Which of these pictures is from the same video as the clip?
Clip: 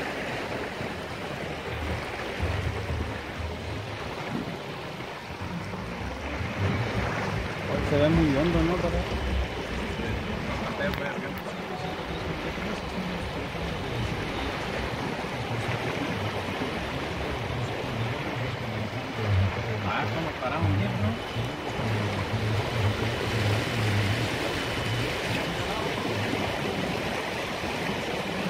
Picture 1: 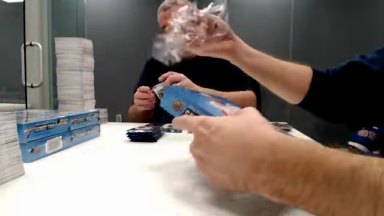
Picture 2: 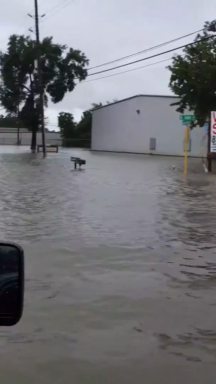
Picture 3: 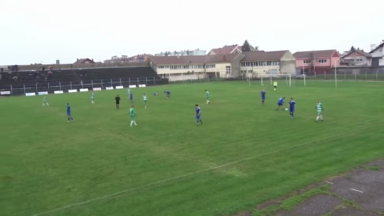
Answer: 2